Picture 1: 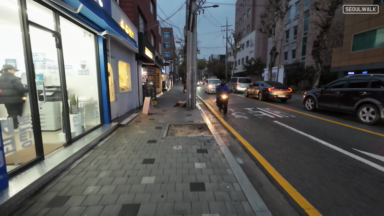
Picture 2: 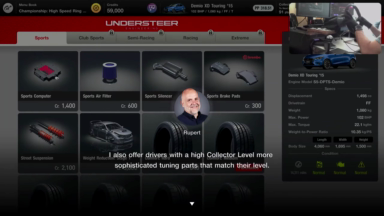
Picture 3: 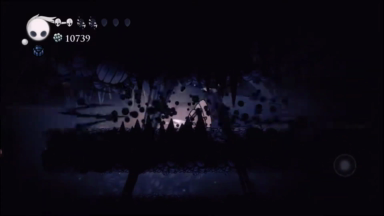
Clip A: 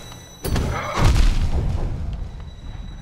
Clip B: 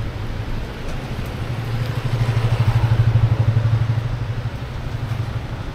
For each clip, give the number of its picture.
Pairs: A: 3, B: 1